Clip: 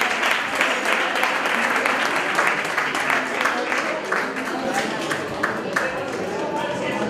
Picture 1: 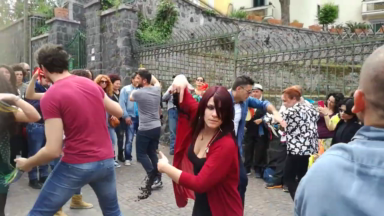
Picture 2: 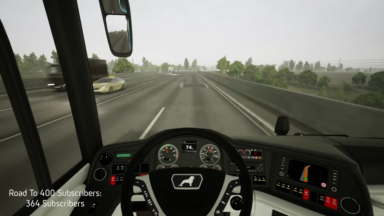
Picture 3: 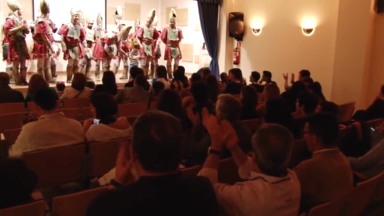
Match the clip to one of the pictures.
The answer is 3